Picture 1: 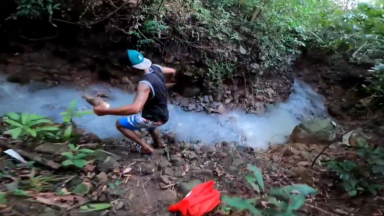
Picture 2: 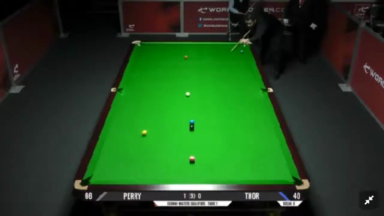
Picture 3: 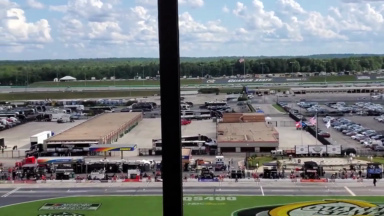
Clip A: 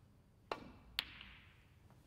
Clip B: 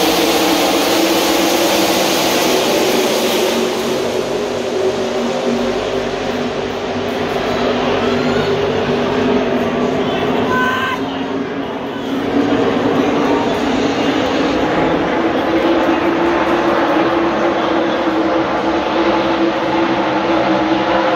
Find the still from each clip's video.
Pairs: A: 2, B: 3